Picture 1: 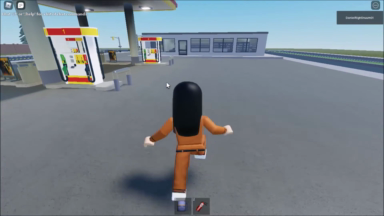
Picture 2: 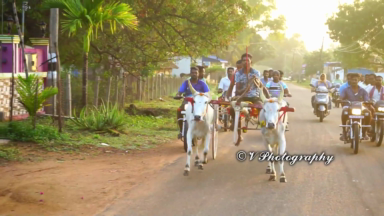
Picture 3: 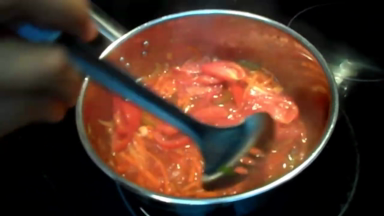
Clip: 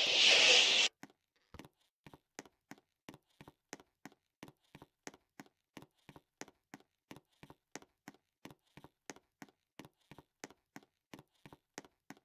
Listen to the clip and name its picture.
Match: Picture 1